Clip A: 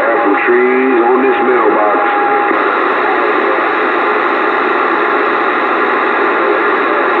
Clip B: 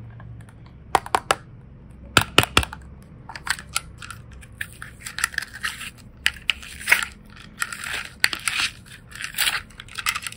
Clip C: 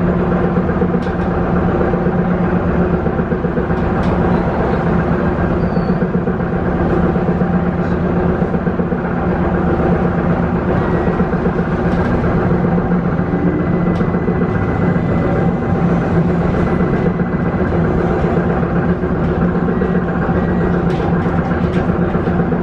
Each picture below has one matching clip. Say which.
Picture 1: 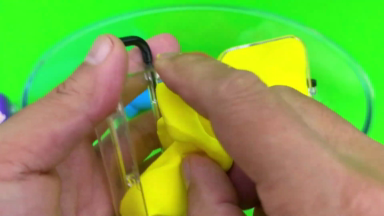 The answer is B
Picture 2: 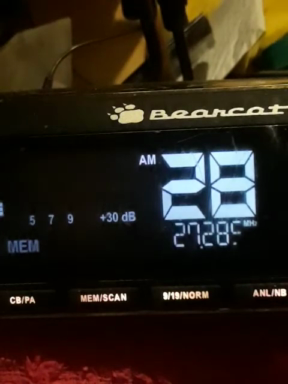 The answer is A